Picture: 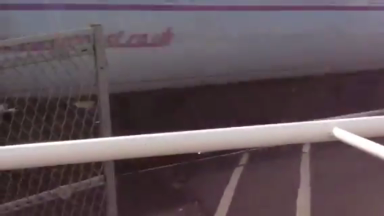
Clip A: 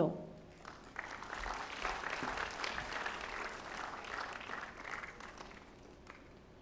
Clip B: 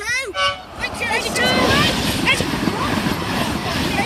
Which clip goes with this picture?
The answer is B